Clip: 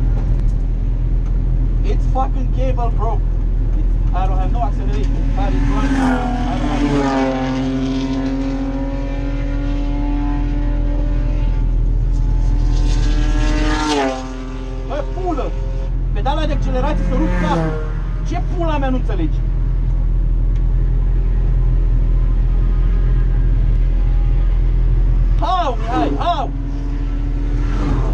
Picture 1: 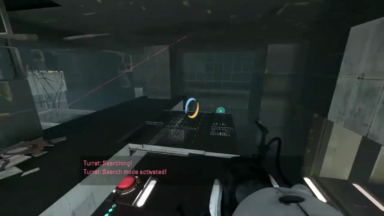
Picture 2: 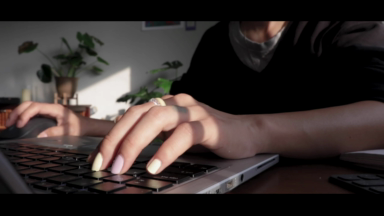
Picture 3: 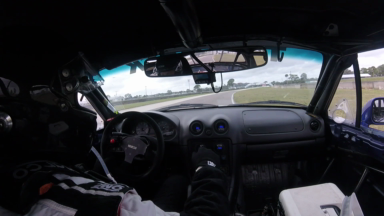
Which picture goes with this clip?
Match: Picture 3